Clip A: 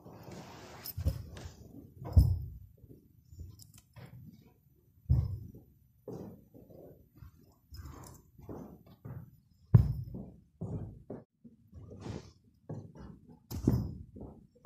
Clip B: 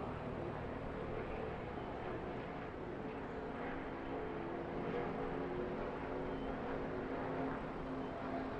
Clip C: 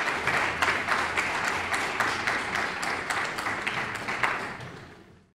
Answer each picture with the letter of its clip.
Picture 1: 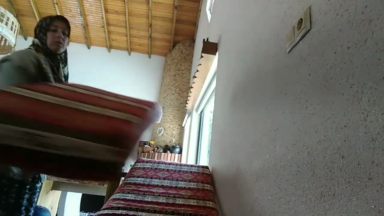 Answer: A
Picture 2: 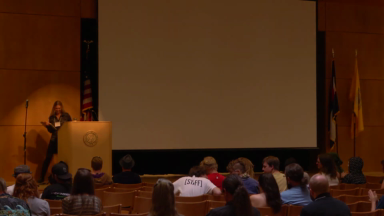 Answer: C